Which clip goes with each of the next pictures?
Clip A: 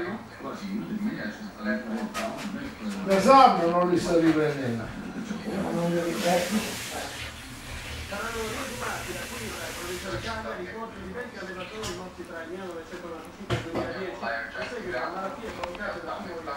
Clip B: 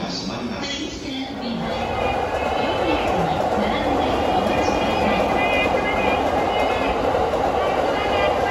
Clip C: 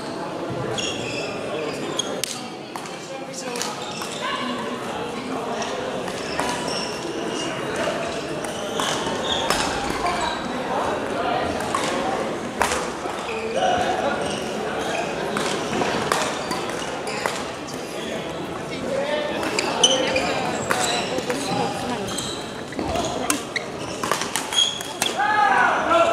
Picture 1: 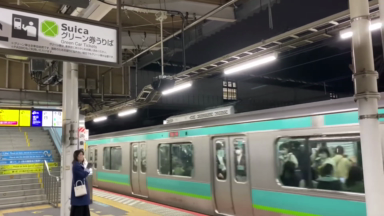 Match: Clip B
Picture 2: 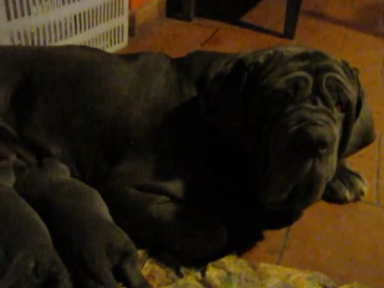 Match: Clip A